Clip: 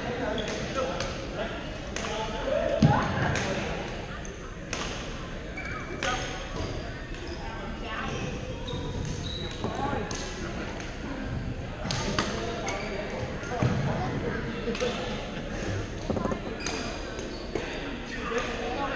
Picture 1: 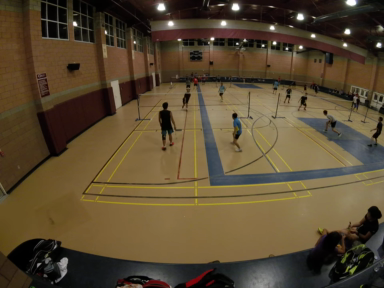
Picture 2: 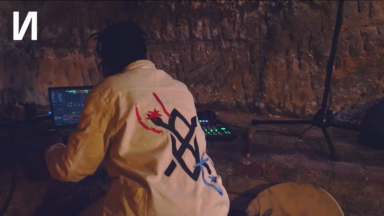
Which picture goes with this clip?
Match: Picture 1